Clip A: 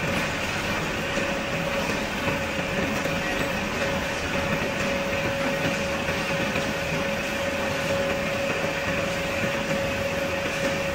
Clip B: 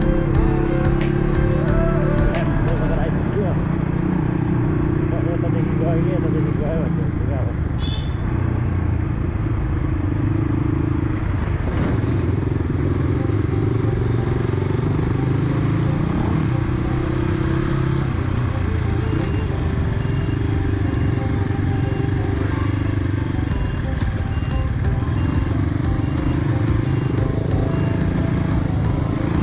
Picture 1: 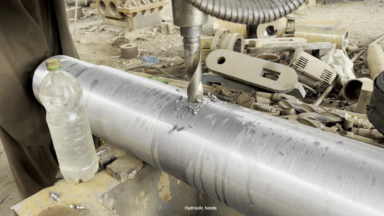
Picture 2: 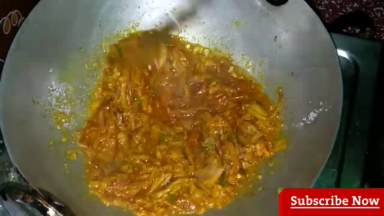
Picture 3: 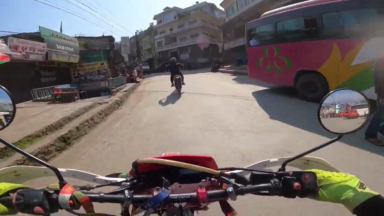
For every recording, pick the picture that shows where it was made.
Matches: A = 1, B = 3